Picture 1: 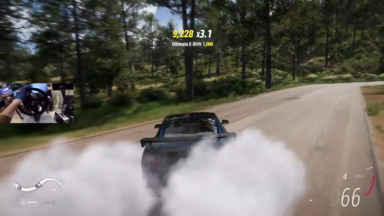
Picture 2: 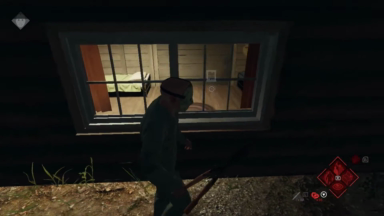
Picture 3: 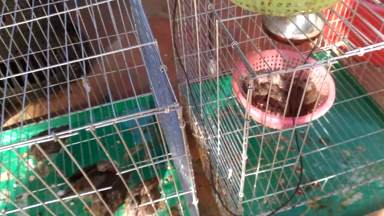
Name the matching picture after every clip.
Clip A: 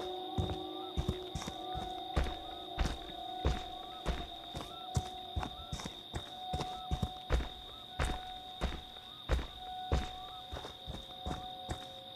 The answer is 2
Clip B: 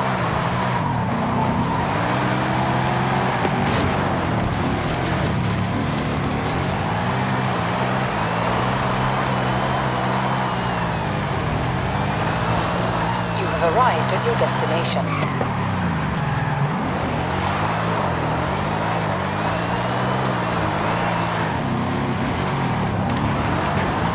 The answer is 1